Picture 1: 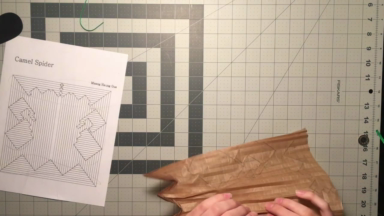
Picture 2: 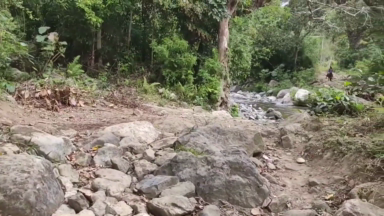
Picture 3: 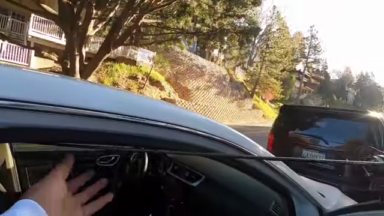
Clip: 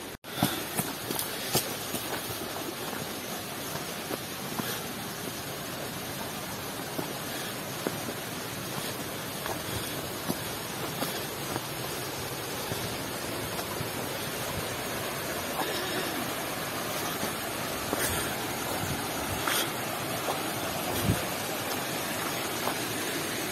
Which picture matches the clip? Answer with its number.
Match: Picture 2